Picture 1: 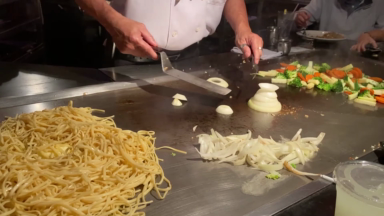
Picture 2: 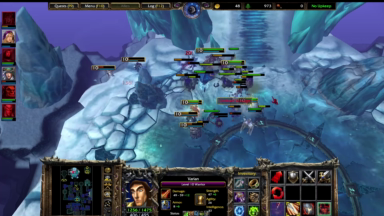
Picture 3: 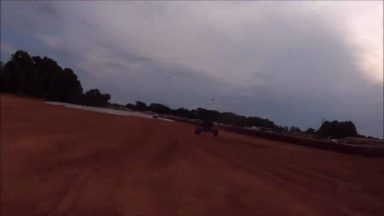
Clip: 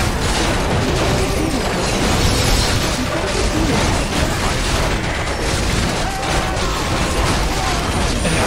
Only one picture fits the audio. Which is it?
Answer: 2